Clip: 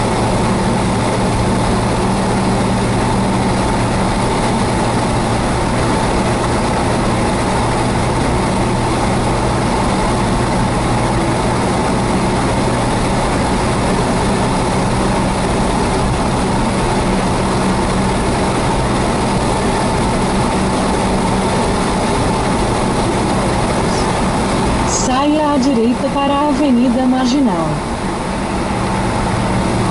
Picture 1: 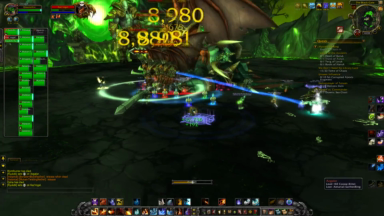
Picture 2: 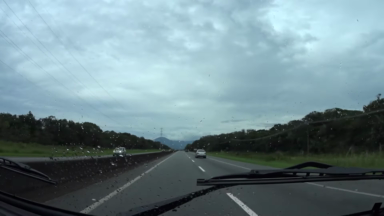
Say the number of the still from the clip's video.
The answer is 2